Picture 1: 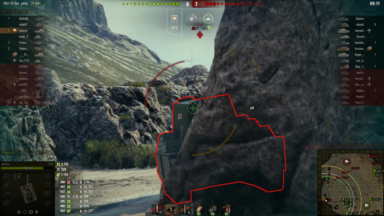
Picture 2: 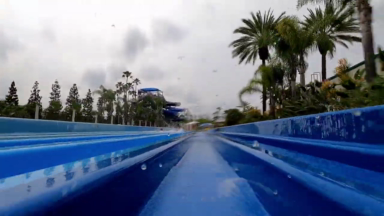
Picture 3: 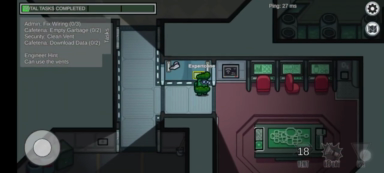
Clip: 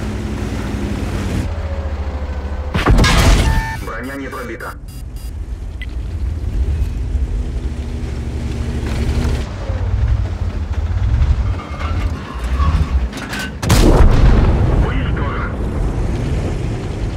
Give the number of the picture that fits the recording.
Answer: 1